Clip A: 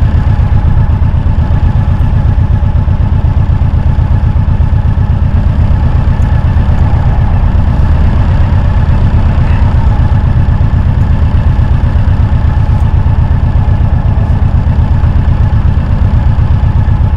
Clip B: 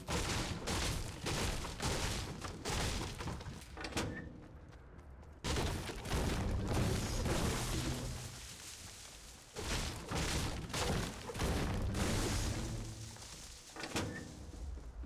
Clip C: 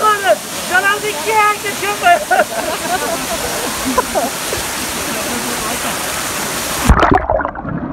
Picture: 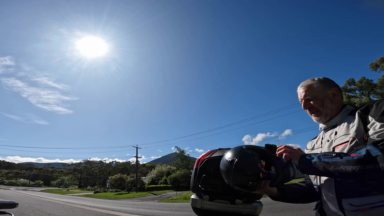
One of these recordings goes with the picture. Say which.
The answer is A